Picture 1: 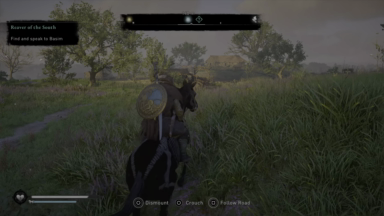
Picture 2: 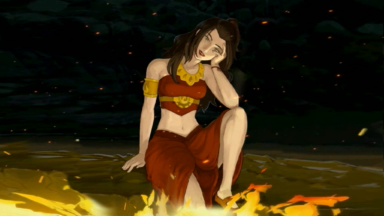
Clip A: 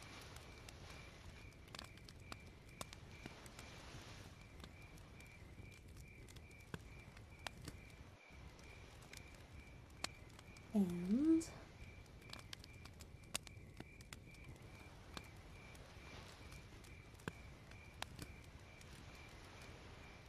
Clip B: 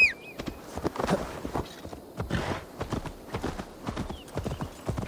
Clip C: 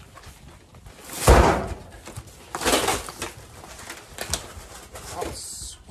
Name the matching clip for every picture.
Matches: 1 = B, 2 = A